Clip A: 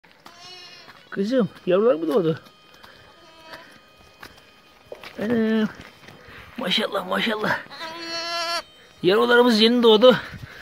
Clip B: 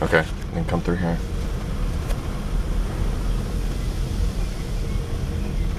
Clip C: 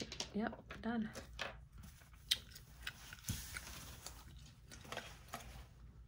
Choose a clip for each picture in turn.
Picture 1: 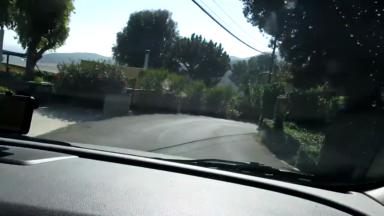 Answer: B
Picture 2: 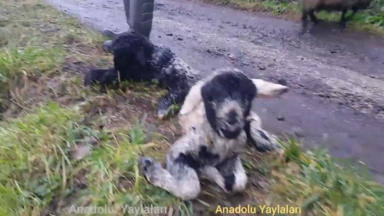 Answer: A